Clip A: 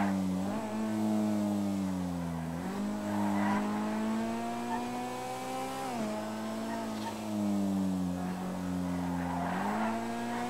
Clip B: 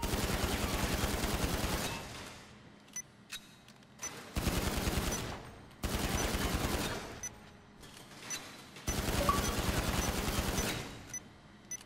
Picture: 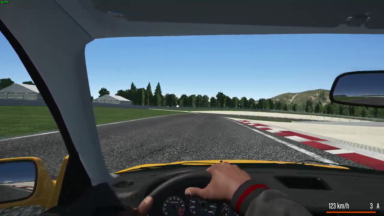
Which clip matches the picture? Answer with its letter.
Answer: A